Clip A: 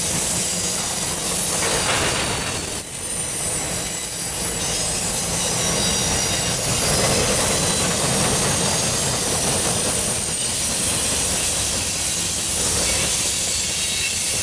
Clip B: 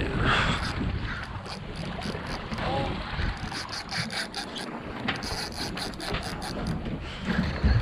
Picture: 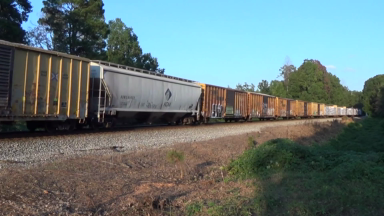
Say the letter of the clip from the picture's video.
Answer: A